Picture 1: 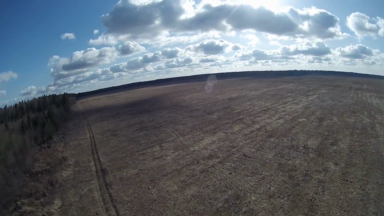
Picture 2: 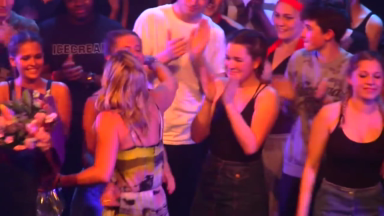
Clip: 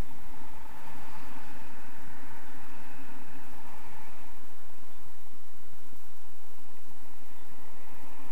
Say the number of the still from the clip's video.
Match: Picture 1